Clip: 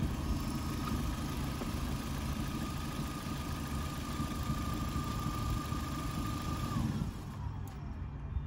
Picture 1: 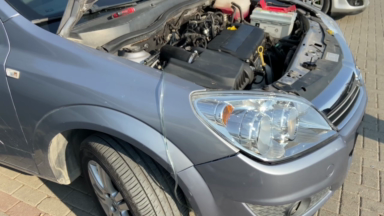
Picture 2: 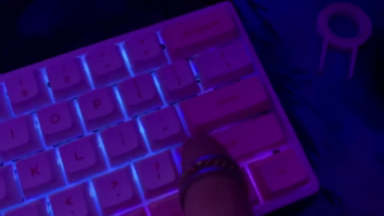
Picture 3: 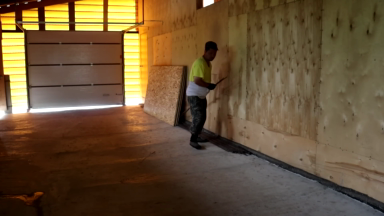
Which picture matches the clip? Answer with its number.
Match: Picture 1